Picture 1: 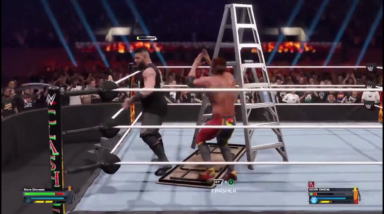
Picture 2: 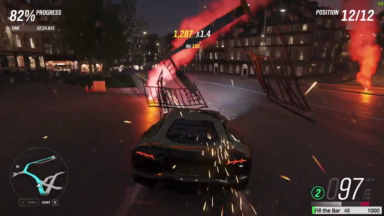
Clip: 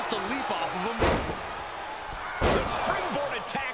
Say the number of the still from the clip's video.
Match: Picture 1